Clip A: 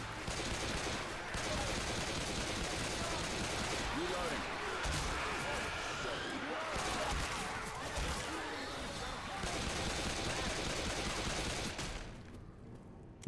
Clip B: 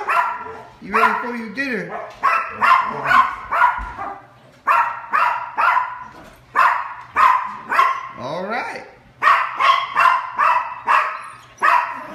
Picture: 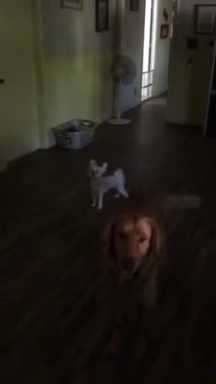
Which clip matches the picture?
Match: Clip B